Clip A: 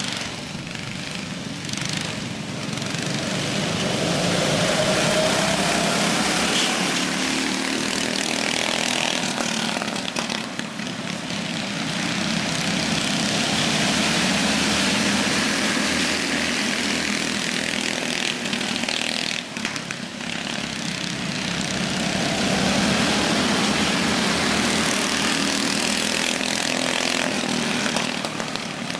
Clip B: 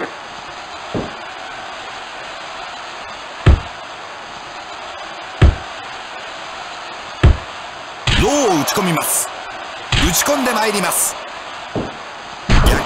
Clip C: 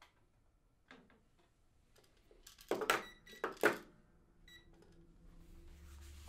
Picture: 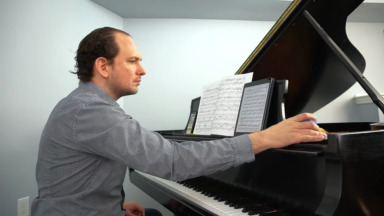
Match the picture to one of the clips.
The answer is C